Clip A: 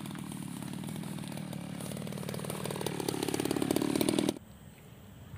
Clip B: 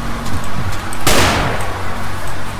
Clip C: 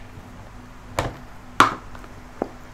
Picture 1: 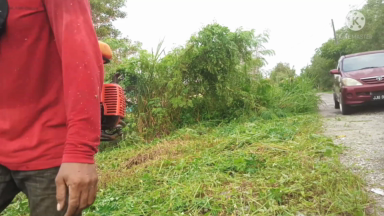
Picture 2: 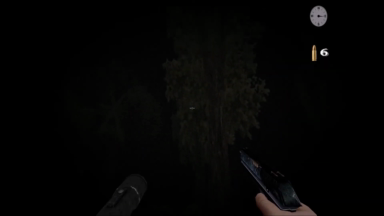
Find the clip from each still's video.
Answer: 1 A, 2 B